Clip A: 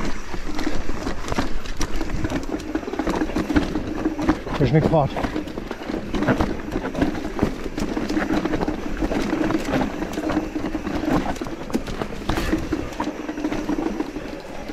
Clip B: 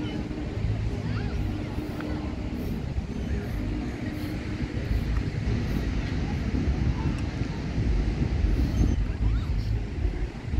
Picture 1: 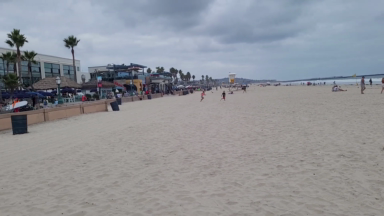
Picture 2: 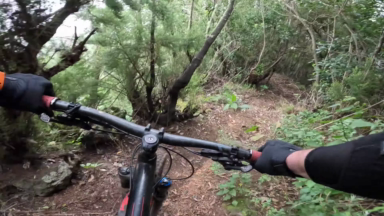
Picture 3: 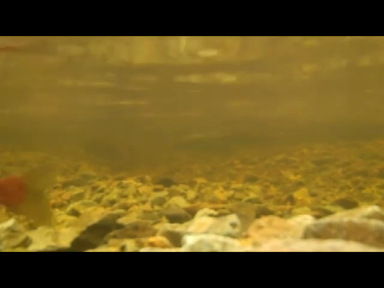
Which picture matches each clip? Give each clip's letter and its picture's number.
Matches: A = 2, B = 1